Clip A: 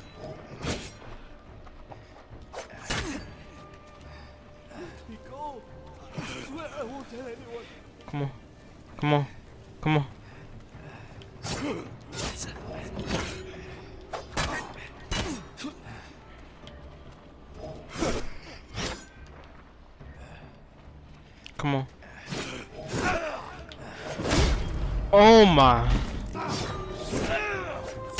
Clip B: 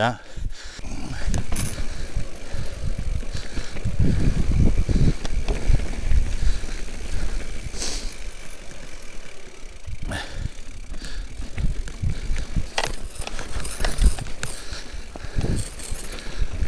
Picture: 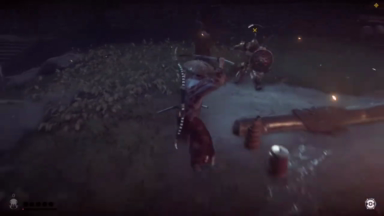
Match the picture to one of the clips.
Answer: A